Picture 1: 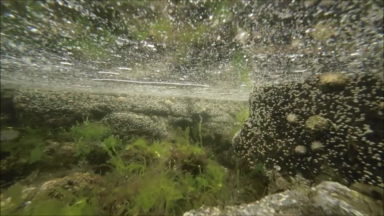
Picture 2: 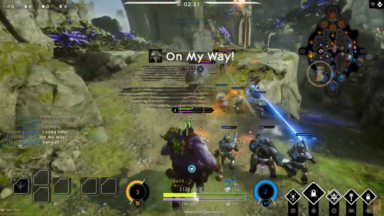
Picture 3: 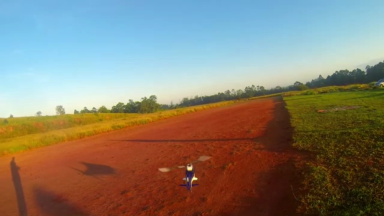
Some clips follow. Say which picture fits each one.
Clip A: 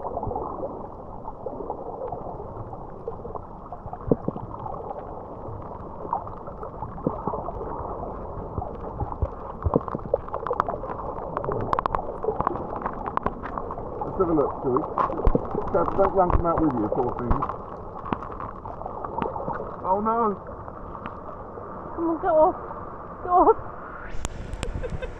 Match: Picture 1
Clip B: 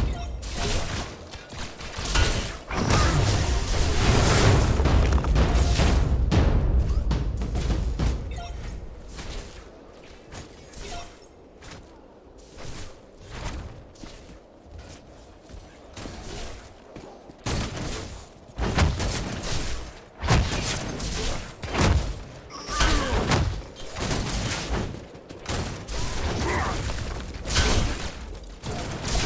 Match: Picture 2